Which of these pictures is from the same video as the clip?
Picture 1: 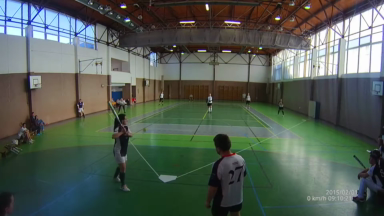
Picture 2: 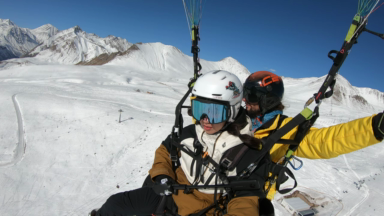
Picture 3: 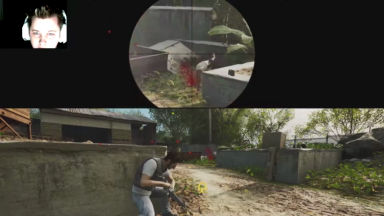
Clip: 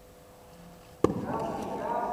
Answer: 1